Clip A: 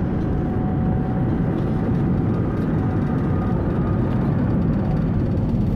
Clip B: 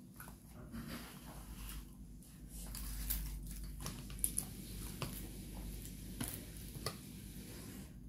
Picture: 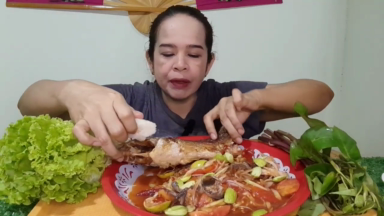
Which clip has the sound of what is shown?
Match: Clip B